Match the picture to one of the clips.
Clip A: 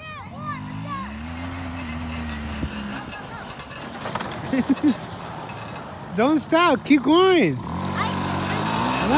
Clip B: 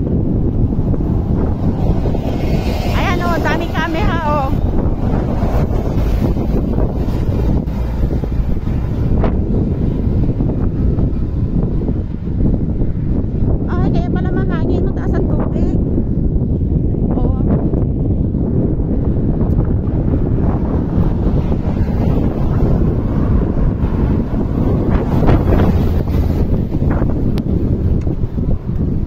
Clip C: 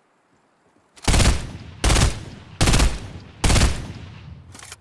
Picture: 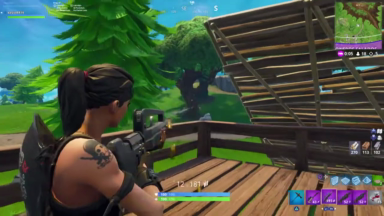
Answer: C